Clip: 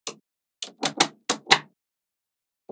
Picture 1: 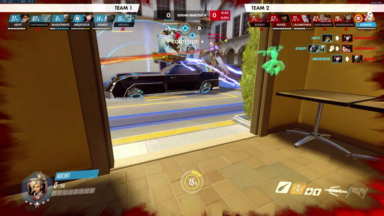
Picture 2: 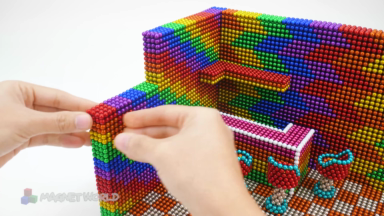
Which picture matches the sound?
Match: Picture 2